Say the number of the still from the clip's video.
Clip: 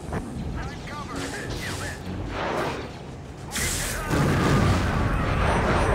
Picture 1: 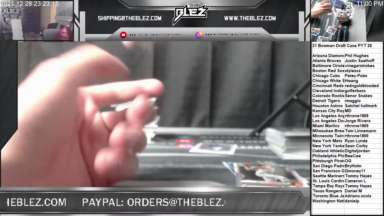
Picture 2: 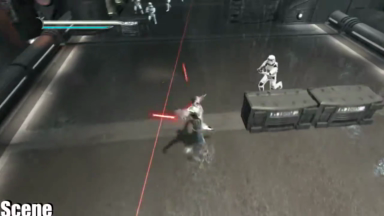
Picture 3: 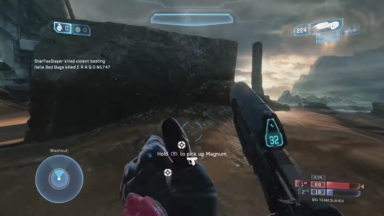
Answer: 2